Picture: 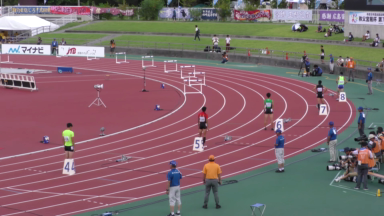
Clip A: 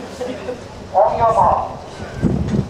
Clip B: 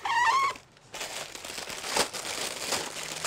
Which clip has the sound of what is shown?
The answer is A